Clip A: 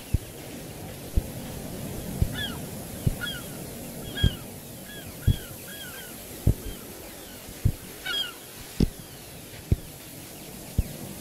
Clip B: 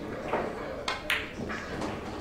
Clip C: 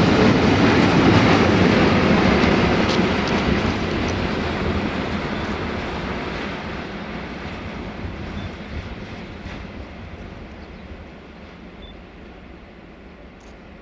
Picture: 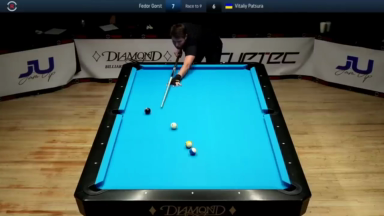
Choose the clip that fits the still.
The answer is B